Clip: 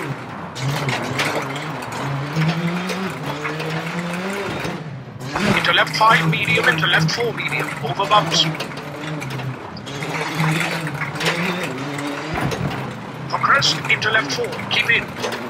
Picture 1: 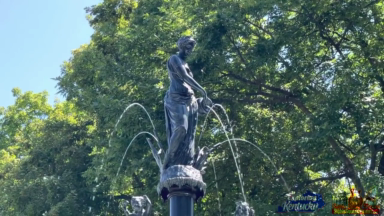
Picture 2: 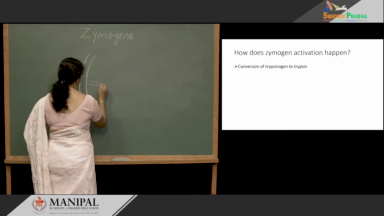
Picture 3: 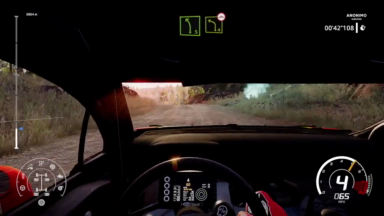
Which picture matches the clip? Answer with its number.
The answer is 3